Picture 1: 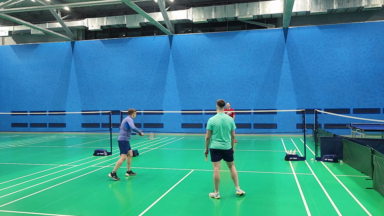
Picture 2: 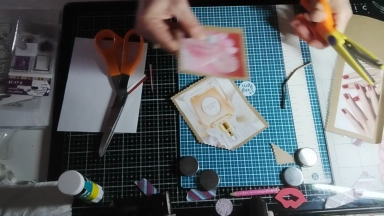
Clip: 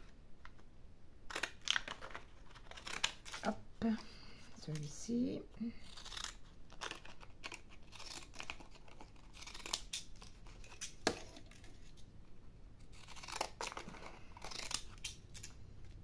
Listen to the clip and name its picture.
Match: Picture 2